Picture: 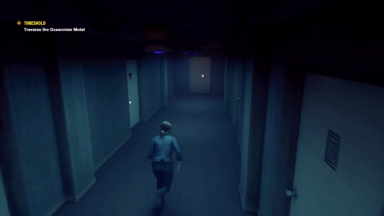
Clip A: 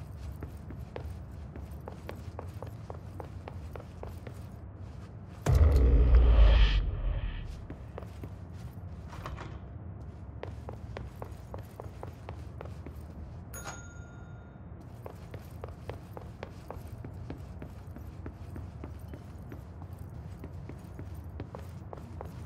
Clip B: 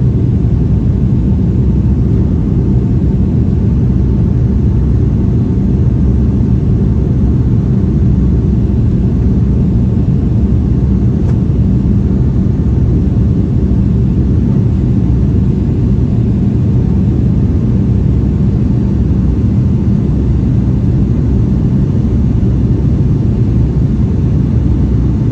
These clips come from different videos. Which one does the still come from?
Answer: A